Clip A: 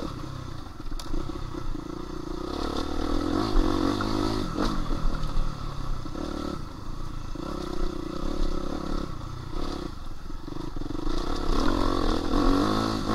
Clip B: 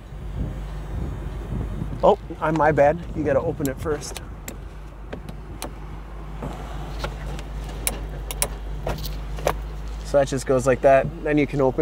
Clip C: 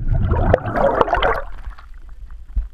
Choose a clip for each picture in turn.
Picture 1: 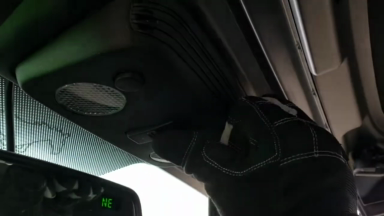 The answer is B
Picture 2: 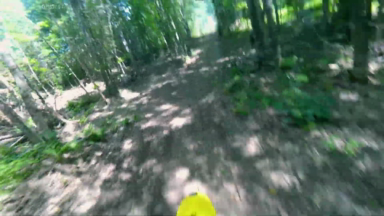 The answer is A